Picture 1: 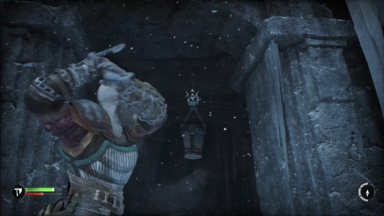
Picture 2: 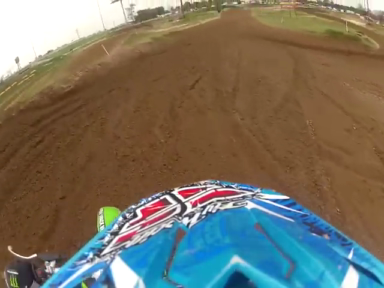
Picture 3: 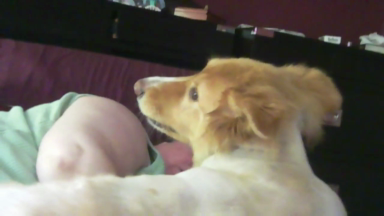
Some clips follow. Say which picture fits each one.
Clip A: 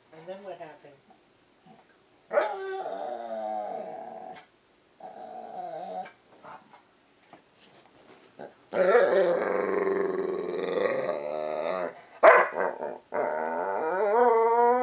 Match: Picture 3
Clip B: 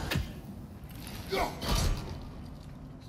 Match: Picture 1